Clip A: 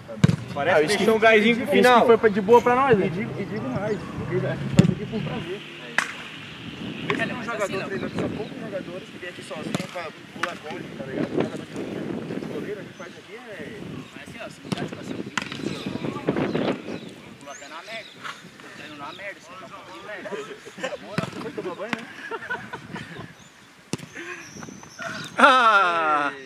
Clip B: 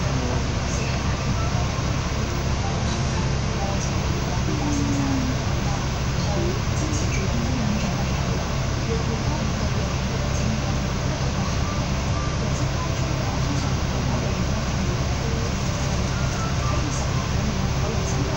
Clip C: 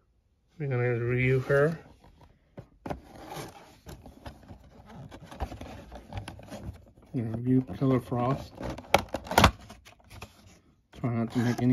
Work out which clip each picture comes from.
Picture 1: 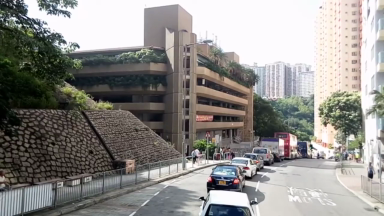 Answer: B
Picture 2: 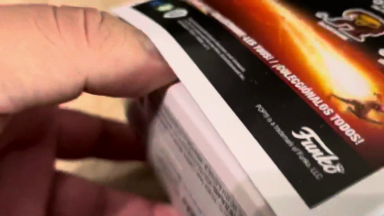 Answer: C